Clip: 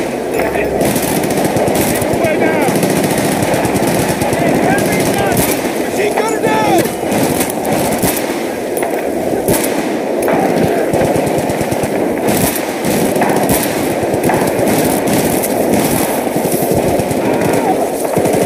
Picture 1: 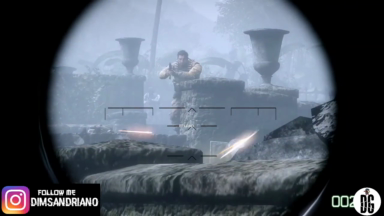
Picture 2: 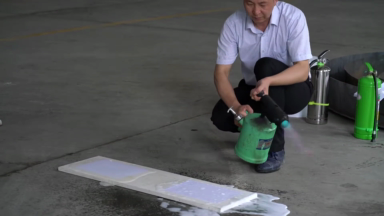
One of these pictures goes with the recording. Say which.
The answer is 1